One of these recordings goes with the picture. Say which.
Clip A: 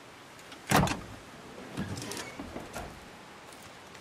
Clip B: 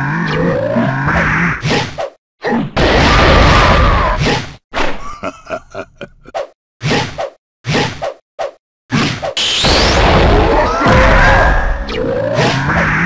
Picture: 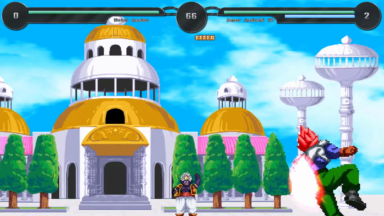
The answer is B